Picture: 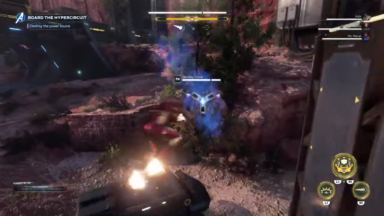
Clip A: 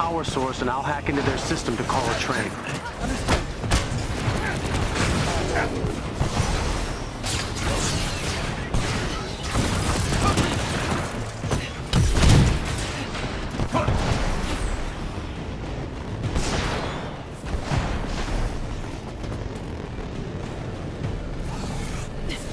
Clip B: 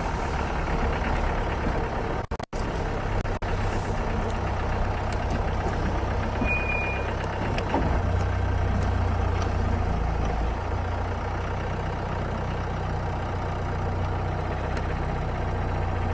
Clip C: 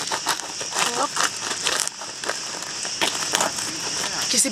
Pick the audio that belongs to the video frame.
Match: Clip A